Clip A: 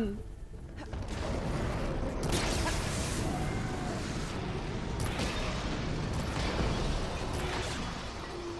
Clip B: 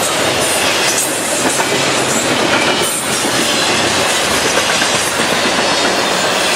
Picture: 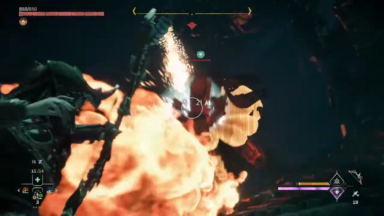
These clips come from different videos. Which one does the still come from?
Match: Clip A